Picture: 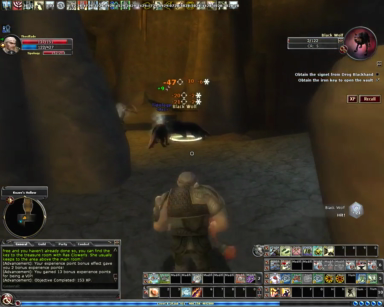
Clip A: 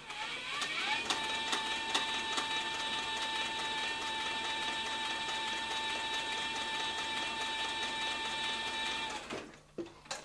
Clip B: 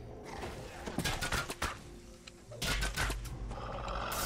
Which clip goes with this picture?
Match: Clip B